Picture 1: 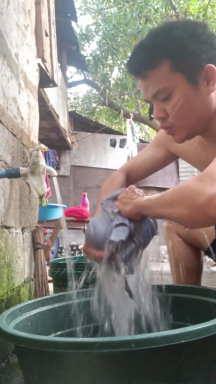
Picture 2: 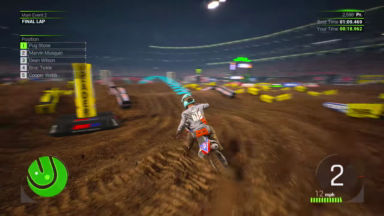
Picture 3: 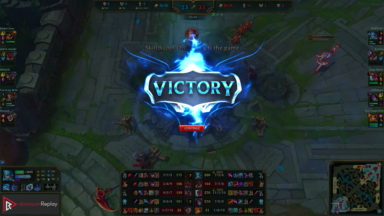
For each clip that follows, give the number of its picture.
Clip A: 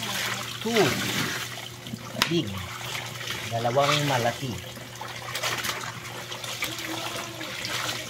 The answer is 1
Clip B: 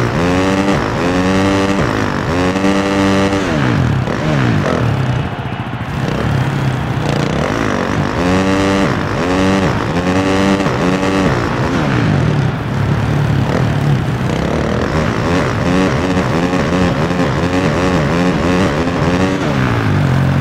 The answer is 2